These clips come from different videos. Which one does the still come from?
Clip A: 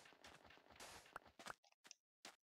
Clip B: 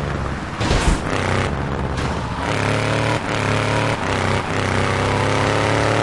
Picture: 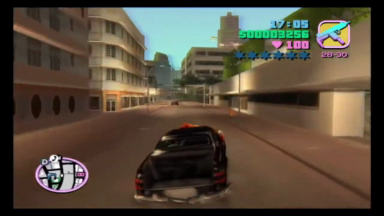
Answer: B